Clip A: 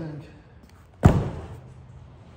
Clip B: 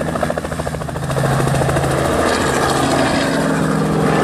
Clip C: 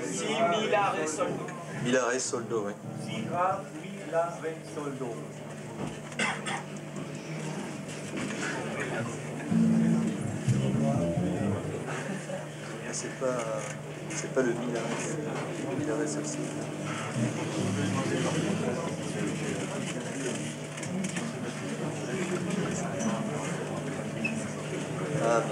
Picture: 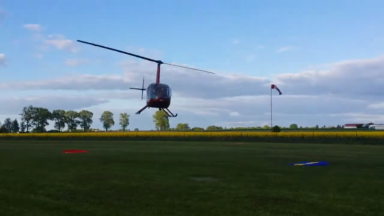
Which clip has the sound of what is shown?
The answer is B